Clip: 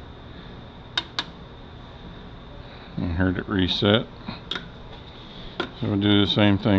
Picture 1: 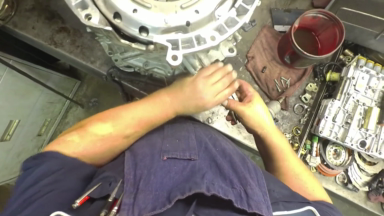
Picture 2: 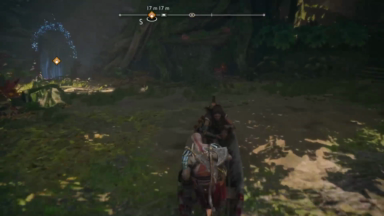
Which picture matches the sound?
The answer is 1